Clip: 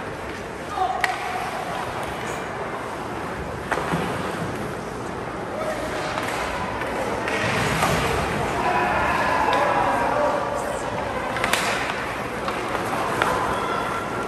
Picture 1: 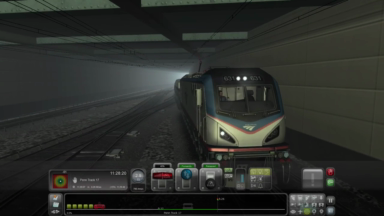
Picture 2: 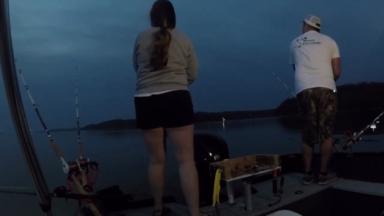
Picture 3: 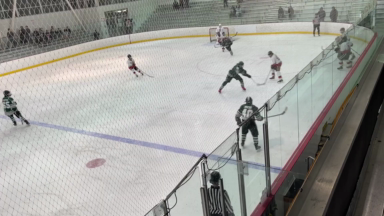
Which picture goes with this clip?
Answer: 3